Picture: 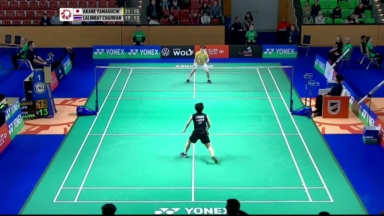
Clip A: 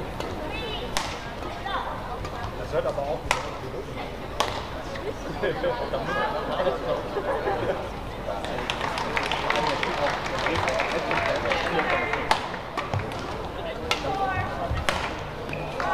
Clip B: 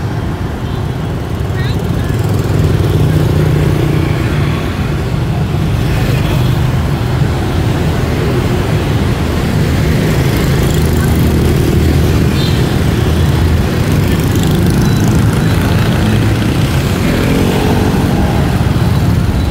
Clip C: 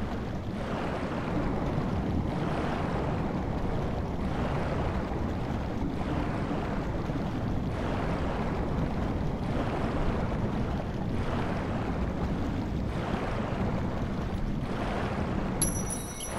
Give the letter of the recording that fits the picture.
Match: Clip A